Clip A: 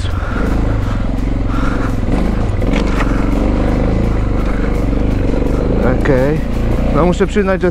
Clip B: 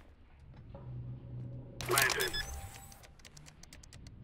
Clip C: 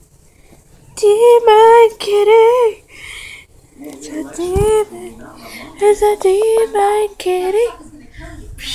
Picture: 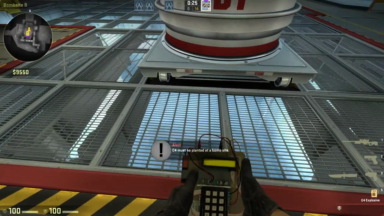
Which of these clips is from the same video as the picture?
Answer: B